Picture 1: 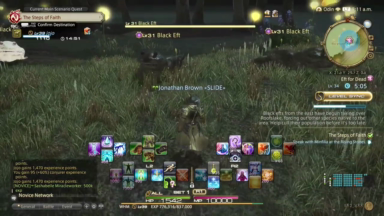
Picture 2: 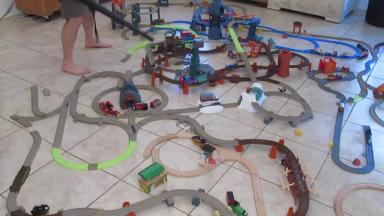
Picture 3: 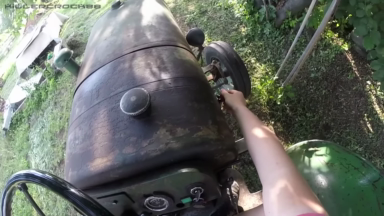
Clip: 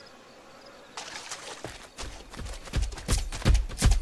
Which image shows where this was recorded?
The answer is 1